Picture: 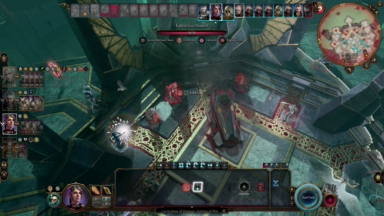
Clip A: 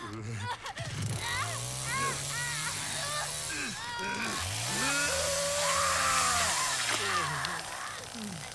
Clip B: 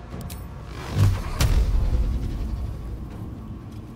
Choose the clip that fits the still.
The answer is B